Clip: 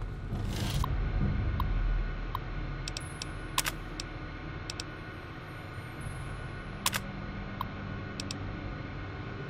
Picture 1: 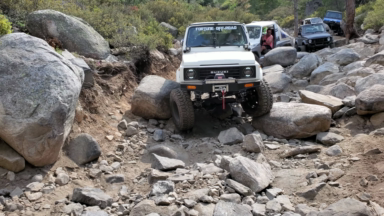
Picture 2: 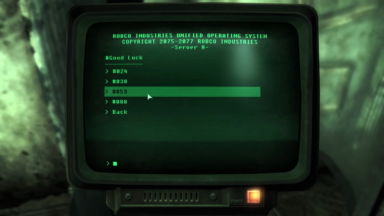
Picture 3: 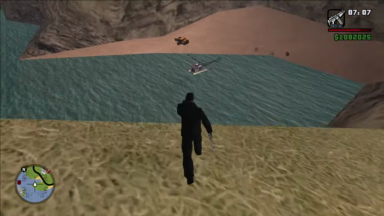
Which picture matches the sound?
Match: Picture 2